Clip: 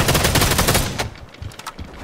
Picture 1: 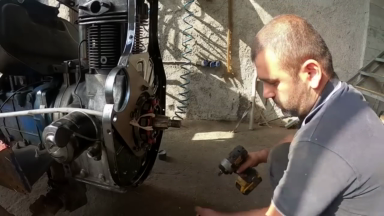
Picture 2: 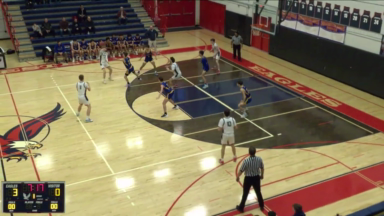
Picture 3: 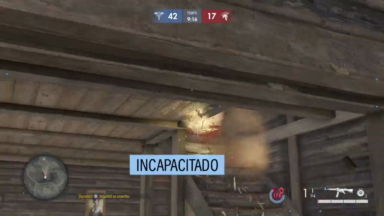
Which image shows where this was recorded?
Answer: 3